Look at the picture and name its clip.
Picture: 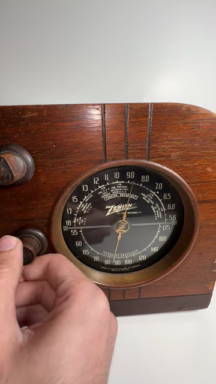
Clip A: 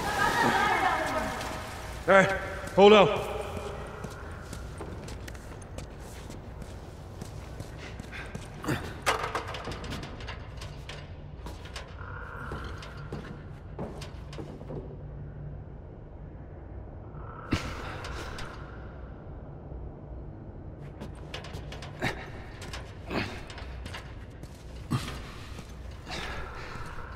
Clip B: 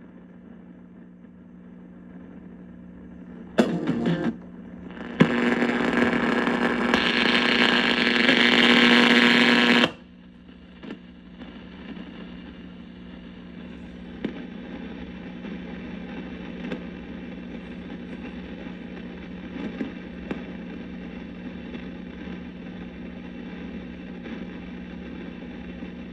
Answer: B